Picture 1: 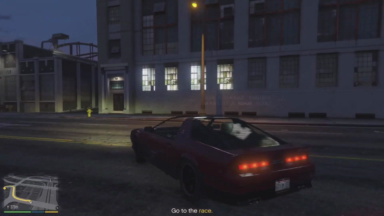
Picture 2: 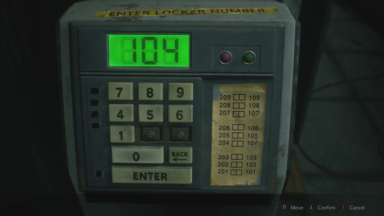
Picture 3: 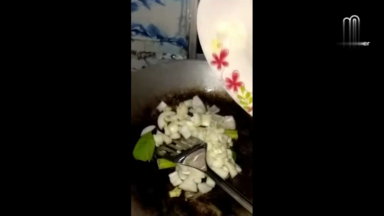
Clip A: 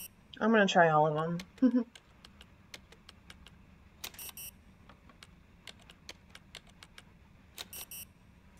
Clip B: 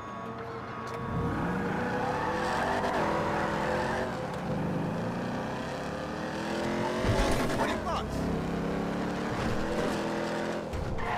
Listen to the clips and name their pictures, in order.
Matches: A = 2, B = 1